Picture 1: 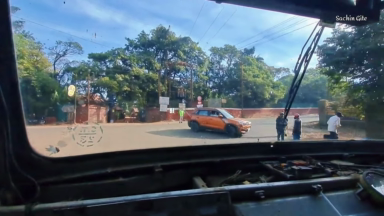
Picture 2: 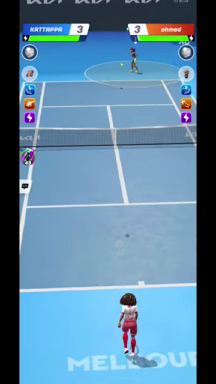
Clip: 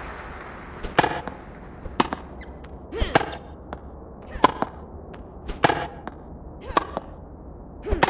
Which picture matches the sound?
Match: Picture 2